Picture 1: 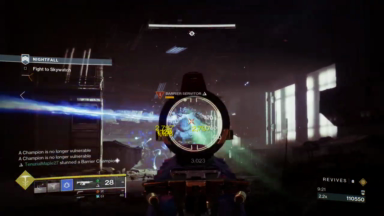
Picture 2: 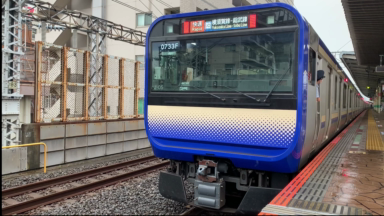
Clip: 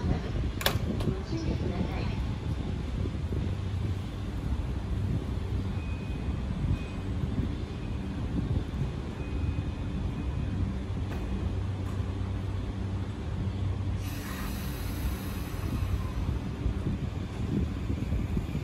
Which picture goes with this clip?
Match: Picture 2